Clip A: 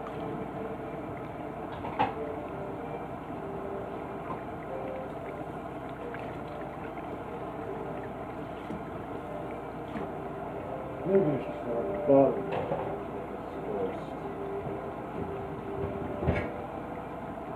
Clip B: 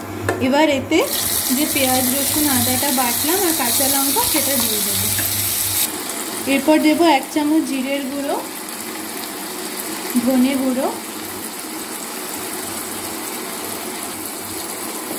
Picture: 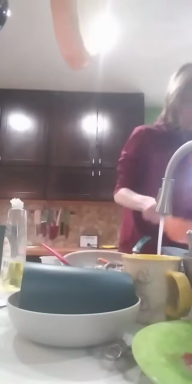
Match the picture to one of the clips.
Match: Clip A